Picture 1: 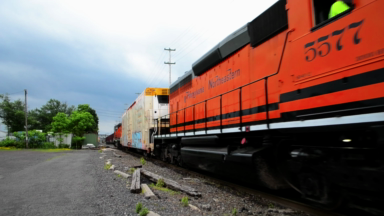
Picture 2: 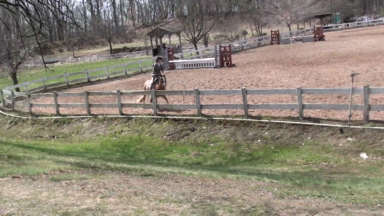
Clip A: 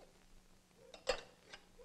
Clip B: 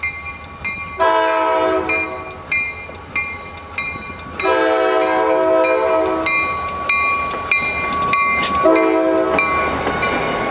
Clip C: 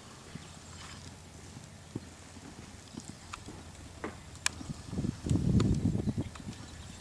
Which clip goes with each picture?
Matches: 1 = B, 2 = C